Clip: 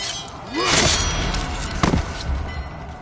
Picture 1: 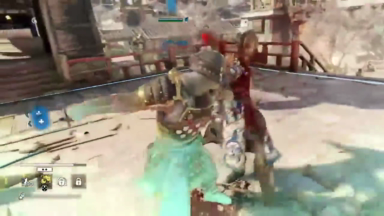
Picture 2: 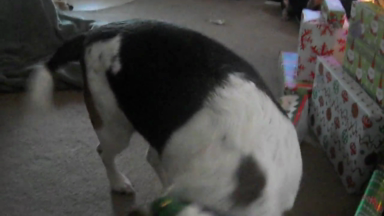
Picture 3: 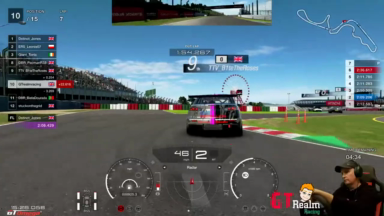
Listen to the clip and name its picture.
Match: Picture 1